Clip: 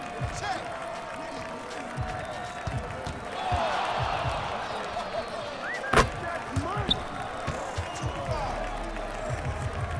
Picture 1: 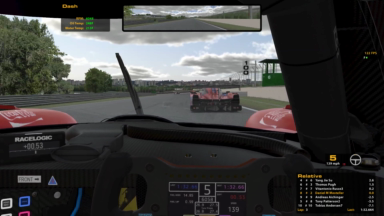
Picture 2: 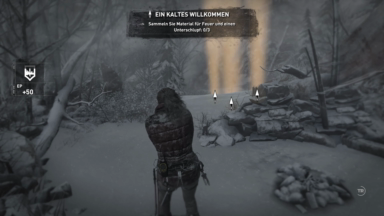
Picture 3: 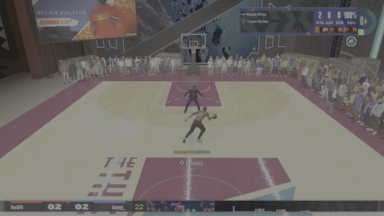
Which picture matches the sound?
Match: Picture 3